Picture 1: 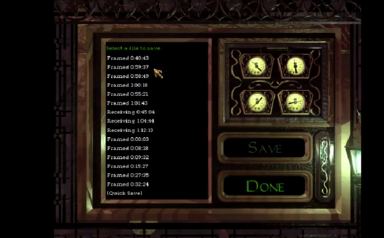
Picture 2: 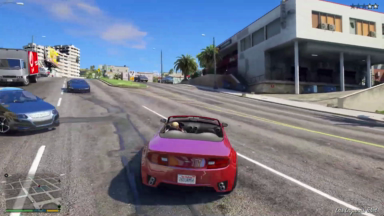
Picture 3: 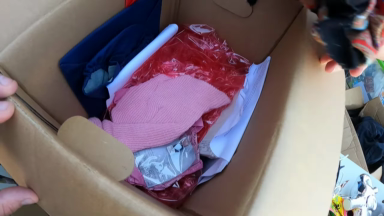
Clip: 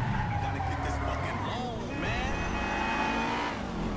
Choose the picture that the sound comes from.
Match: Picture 2